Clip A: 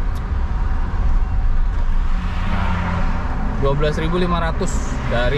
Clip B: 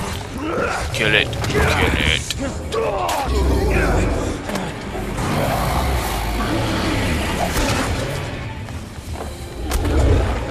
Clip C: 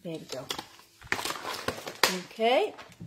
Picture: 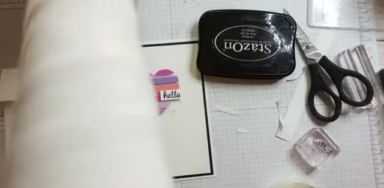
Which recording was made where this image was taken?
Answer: C